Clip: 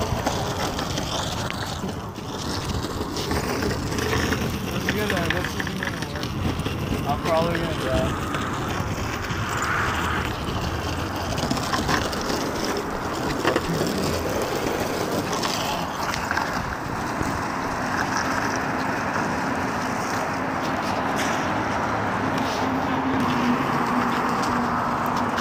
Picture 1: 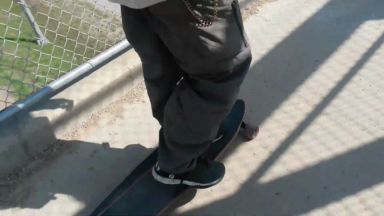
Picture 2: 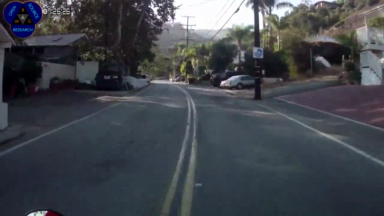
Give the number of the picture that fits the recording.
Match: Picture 1